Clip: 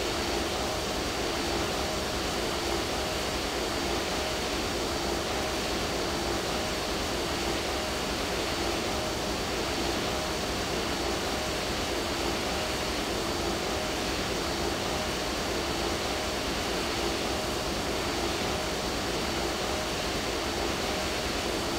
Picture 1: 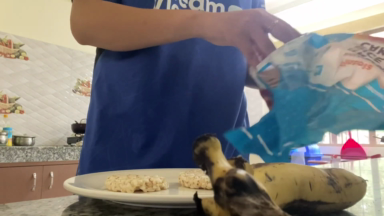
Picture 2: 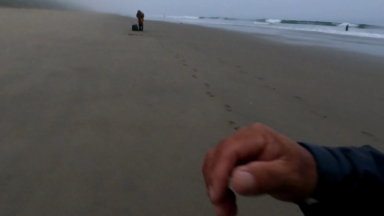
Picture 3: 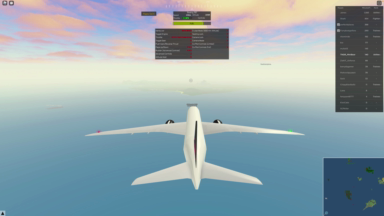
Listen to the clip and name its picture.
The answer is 3